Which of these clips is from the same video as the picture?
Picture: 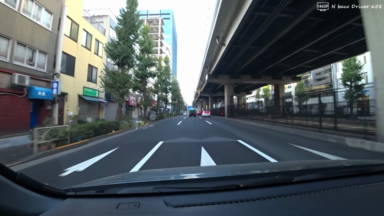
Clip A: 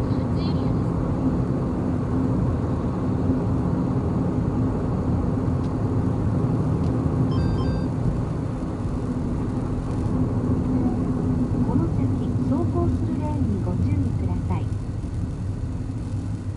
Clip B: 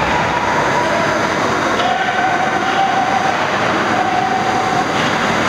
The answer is A